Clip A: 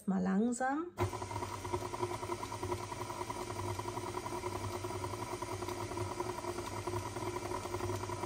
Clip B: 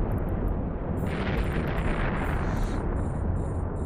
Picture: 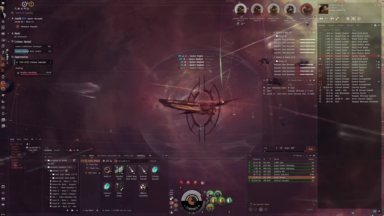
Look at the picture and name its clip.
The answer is B